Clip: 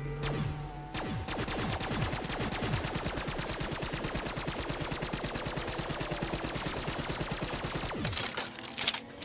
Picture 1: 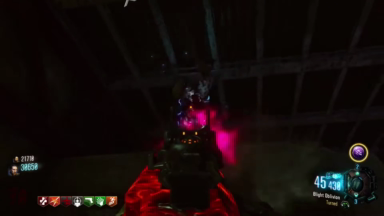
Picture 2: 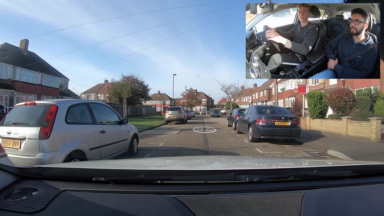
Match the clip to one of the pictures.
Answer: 1